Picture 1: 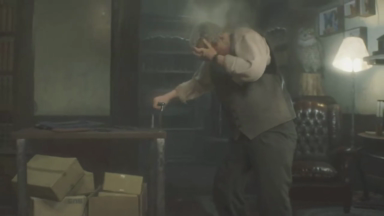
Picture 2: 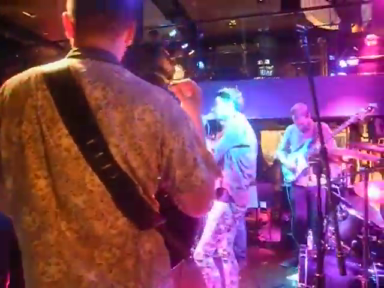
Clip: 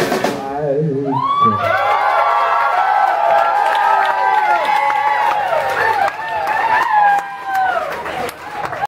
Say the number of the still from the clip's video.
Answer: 2